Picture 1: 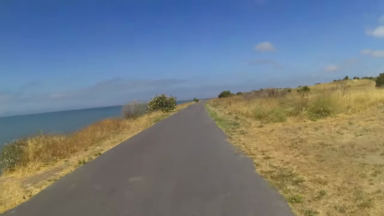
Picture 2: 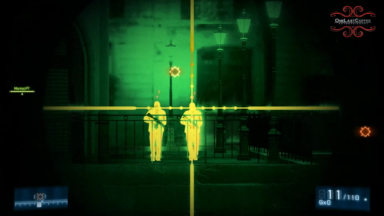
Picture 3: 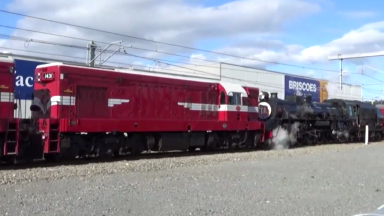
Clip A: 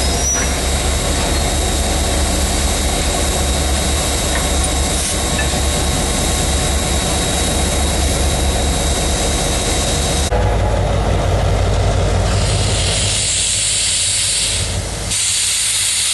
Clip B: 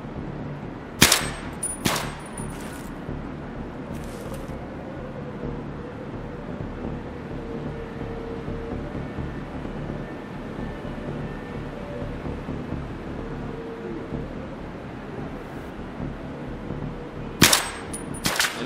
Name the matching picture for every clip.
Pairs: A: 3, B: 2